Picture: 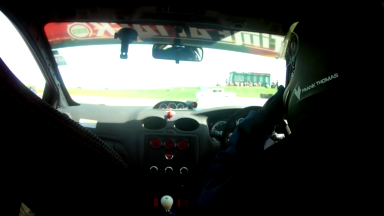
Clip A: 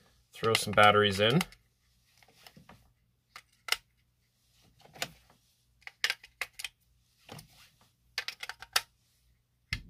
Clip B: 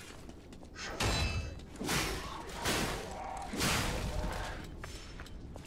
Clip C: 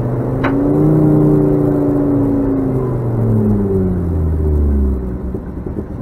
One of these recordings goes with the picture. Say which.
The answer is C